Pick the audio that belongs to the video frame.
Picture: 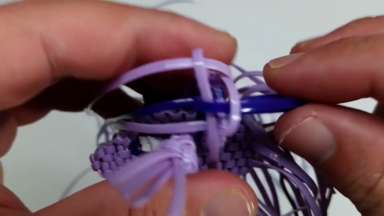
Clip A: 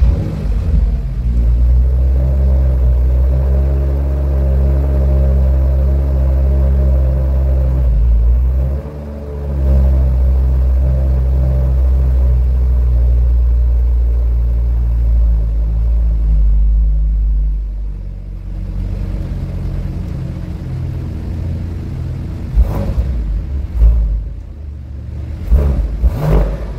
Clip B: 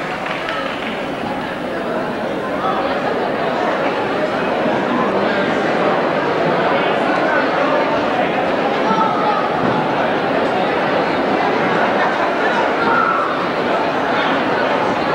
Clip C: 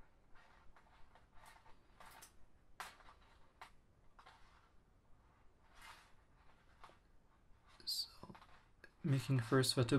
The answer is C